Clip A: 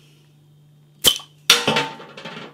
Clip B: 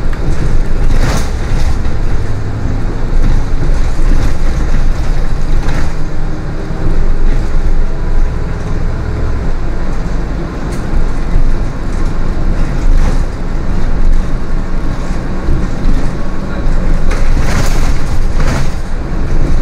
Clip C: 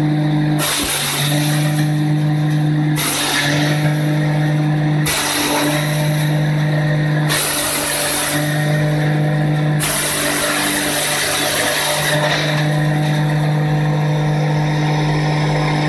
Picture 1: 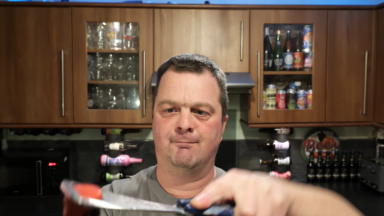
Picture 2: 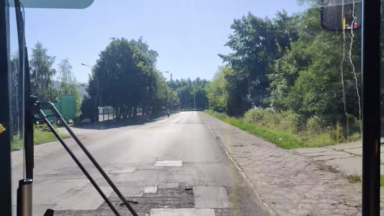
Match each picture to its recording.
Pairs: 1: A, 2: B